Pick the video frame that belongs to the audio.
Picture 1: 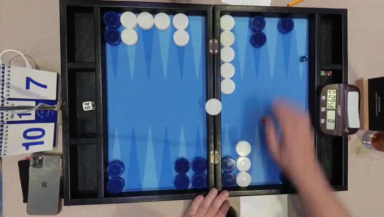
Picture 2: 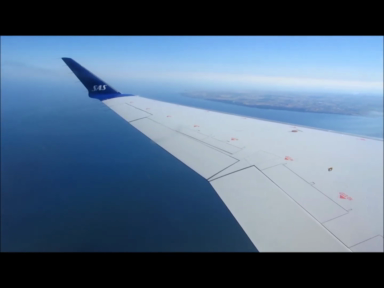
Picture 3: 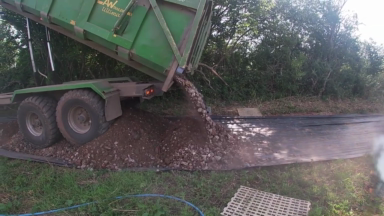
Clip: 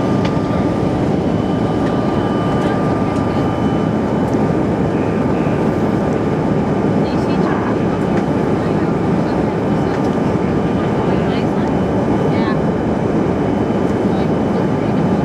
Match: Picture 2